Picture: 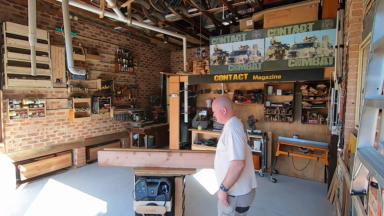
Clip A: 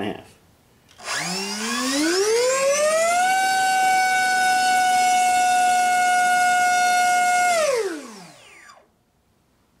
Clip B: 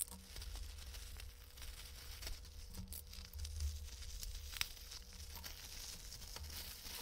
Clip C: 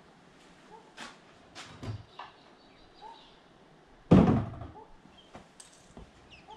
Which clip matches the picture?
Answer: C